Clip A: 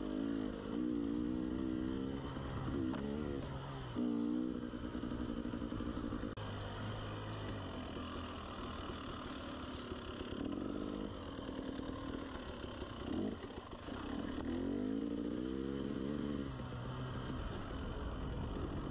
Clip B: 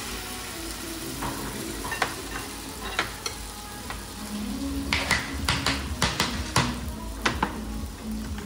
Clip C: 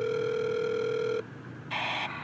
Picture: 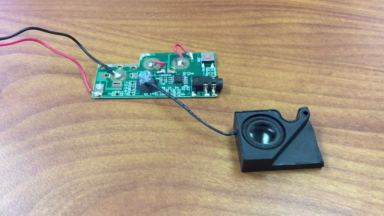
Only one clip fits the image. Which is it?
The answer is C